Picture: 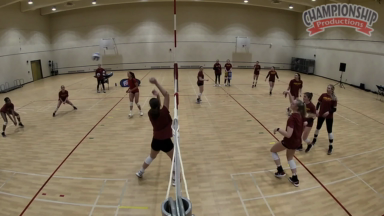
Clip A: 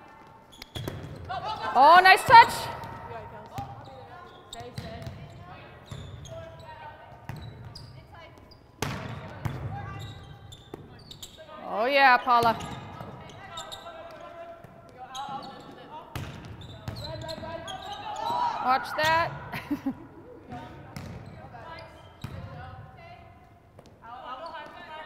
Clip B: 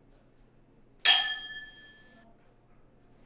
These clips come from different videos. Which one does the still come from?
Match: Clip A